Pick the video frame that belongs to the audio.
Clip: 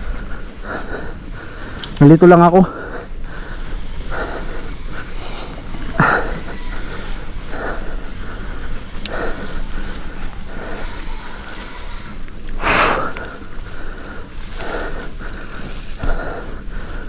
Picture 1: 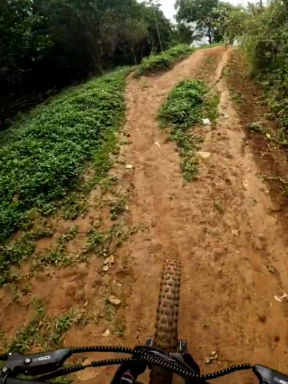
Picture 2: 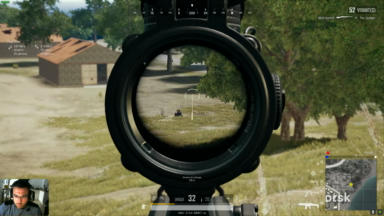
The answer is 1